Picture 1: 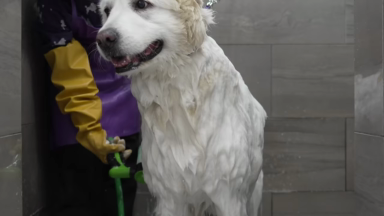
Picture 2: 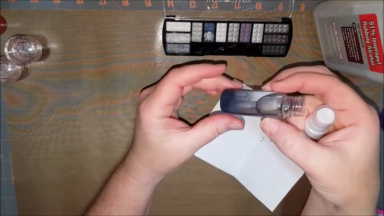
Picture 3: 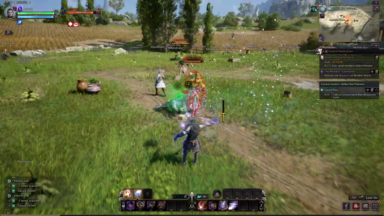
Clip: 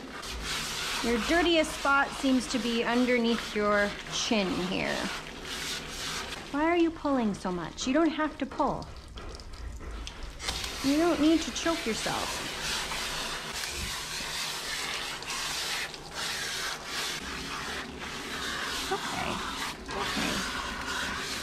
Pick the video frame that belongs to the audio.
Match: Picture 1